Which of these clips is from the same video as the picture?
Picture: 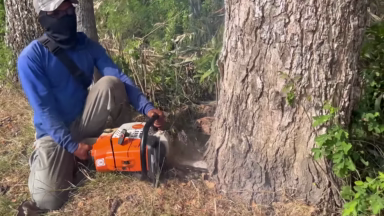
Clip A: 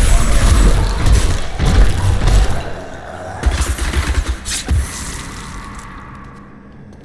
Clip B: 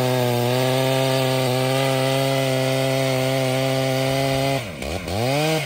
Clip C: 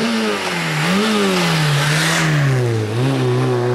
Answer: B